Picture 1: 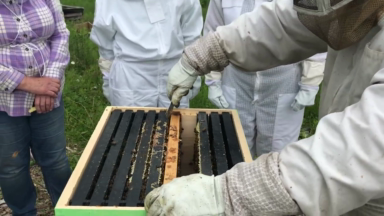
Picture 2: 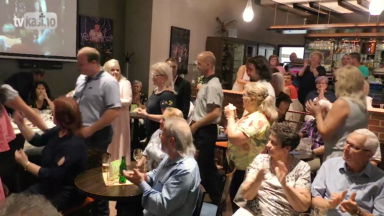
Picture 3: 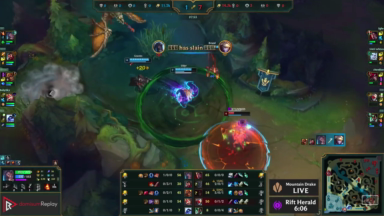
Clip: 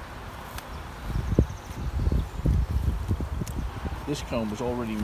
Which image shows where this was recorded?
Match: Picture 1